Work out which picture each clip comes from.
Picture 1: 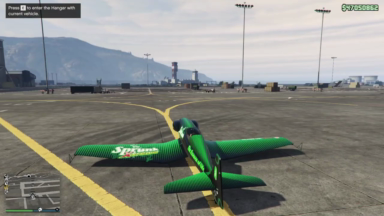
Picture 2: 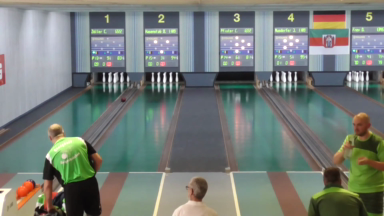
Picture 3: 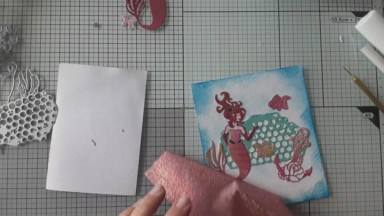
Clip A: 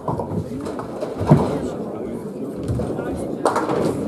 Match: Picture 2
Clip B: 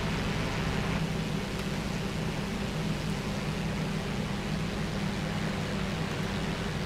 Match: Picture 1